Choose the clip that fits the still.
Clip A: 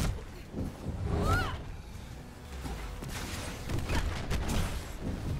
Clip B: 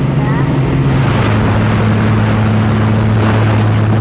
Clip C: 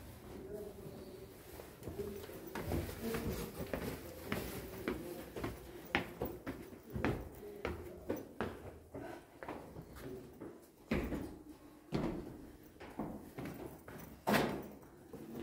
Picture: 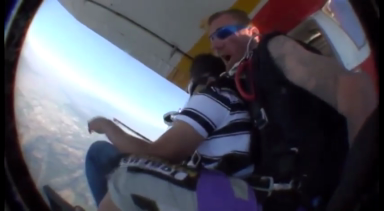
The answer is B